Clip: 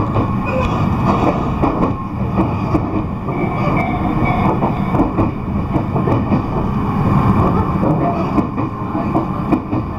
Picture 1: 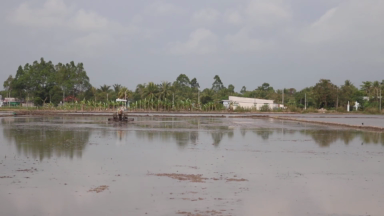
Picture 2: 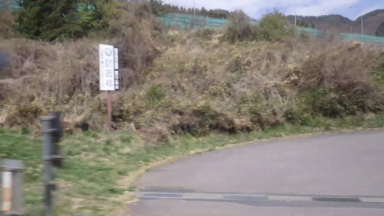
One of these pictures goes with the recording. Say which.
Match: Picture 2